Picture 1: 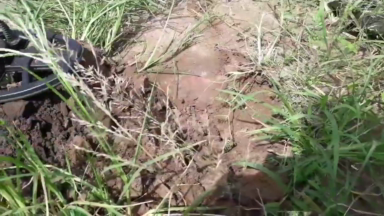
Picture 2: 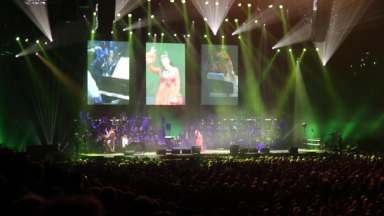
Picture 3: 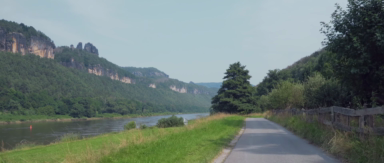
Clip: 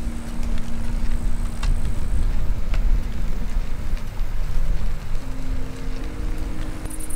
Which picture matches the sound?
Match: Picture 3